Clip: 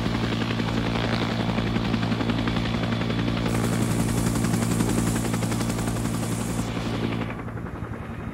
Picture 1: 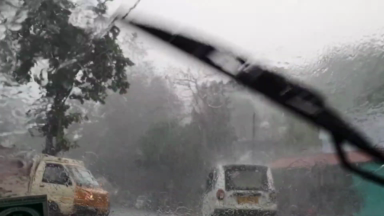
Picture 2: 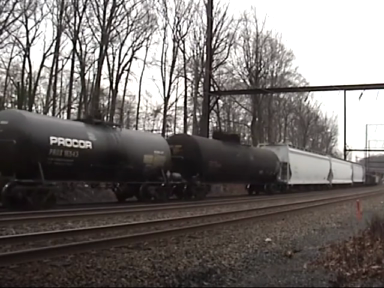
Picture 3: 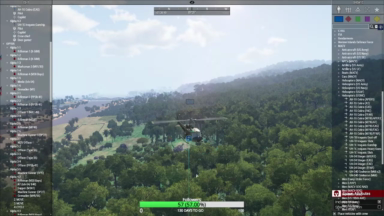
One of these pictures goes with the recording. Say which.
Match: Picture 3